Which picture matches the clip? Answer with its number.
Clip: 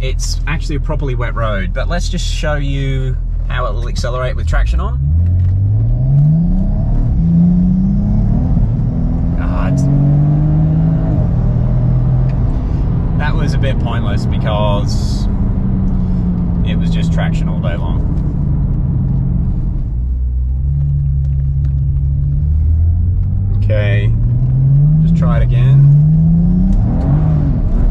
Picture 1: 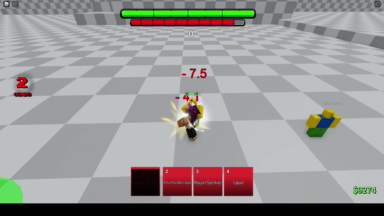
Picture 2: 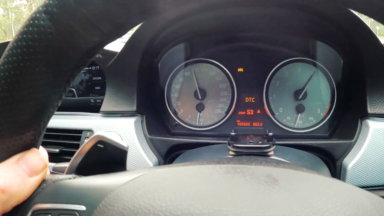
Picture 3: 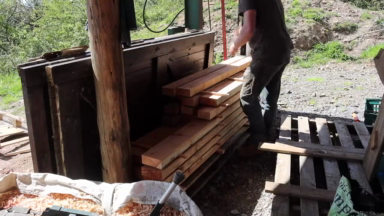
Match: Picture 2